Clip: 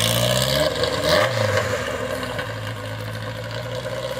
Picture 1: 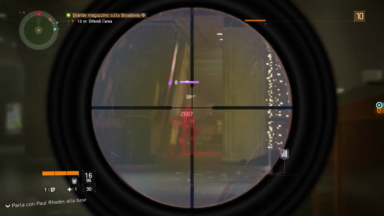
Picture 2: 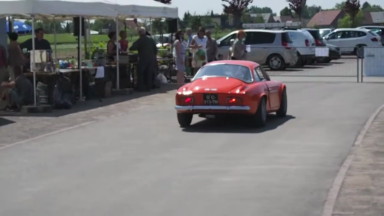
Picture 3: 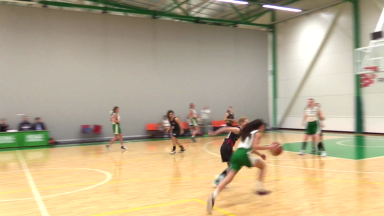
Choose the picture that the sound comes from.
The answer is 2